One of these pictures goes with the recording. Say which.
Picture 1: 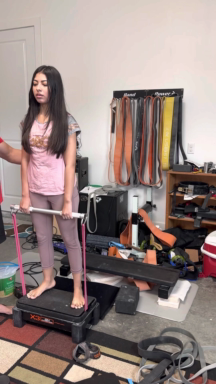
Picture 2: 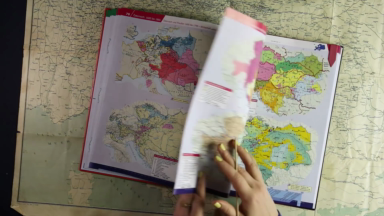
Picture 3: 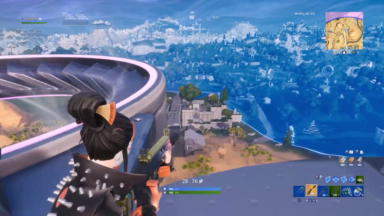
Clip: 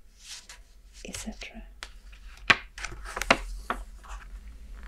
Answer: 2